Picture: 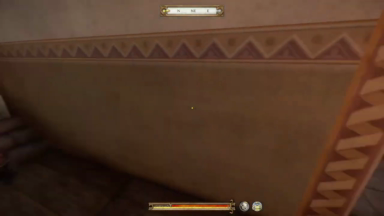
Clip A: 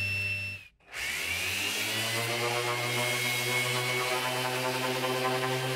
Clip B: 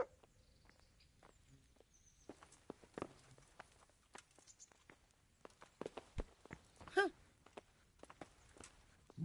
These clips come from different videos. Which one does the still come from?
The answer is B